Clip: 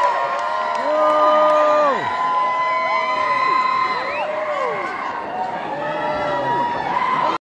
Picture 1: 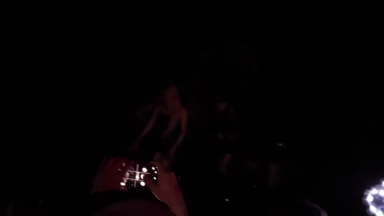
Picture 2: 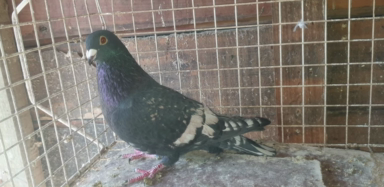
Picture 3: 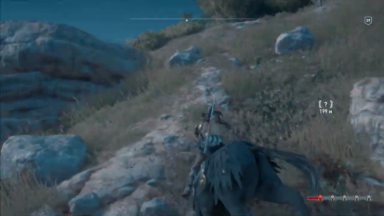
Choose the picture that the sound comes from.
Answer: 1